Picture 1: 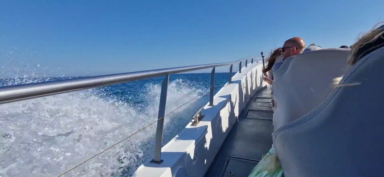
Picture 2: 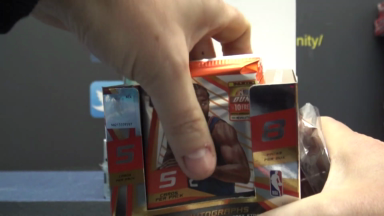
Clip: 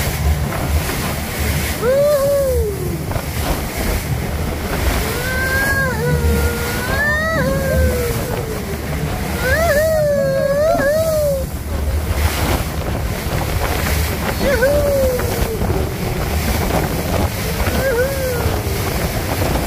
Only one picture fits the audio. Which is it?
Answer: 1